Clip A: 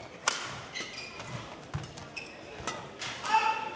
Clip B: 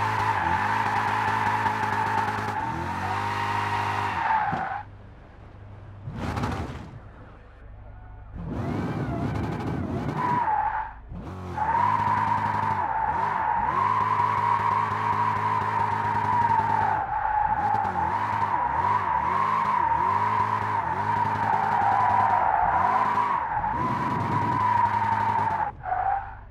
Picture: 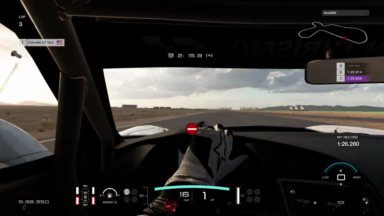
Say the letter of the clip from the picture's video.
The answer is B